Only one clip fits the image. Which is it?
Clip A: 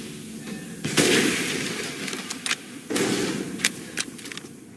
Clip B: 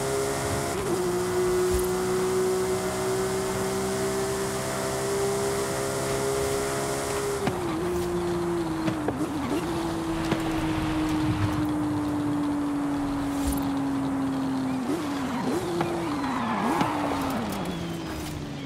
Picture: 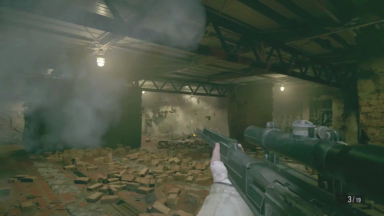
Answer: A